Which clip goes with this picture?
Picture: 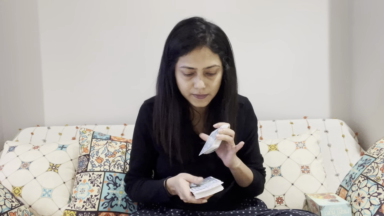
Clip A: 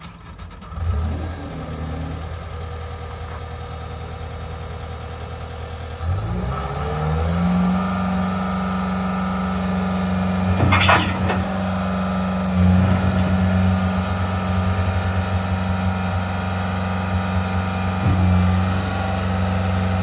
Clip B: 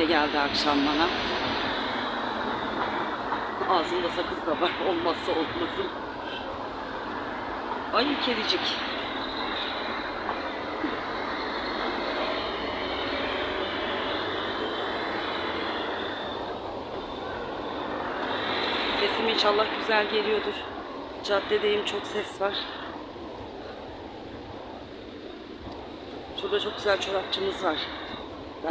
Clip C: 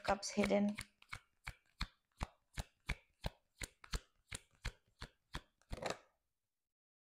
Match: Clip C